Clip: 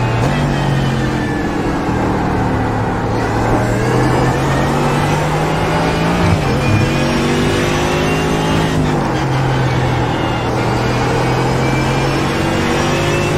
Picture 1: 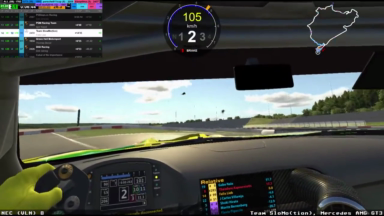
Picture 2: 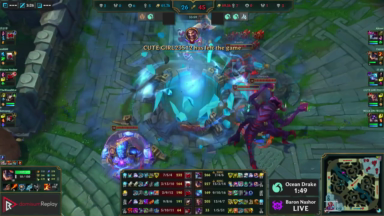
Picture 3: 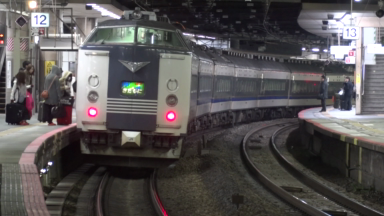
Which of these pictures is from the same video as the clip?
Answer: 1